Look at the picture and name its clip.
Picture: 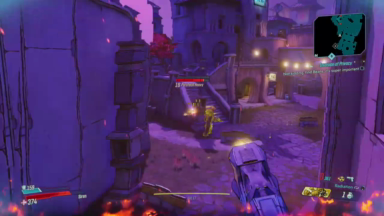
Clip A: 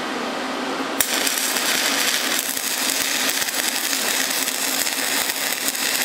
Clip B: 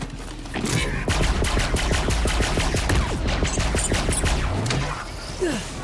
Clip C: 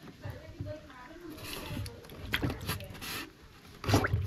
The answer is B